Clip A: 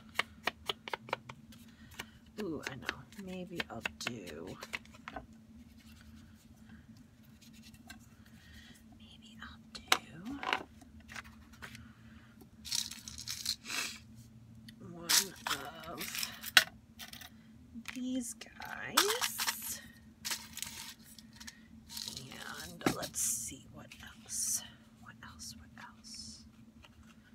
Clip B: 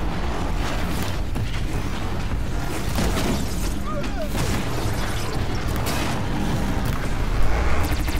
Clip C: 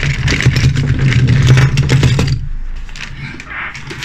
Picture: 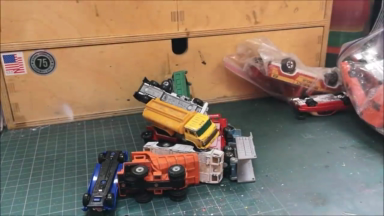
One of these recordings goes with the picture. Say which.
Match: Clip C